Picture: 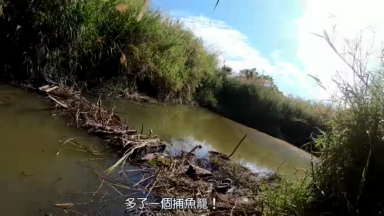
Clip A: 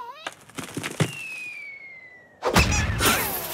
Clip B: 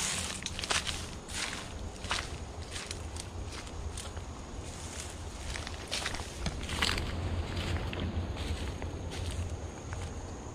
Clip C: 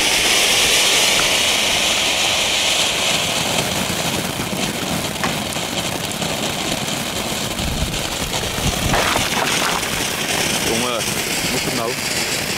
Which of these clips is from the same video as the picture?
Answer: B